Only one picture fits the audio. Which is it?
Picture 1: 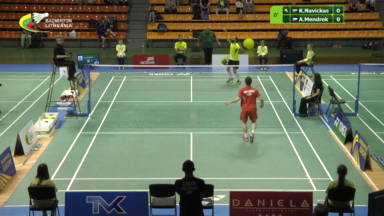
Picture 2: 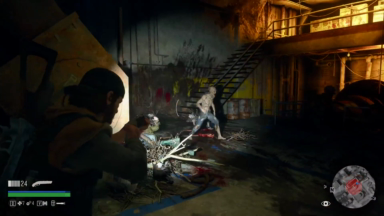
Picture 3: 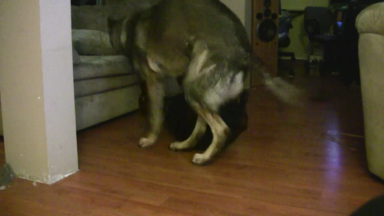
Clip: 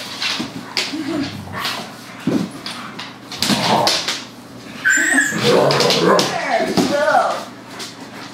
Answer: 3